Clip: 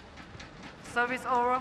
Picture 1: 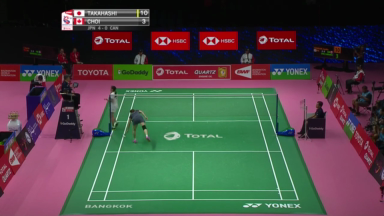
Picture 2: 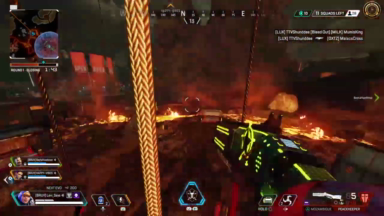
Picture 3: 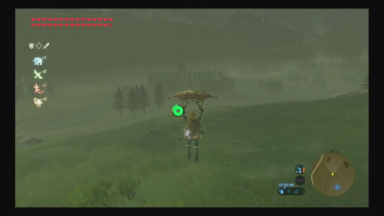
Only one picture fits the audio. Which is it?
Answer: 1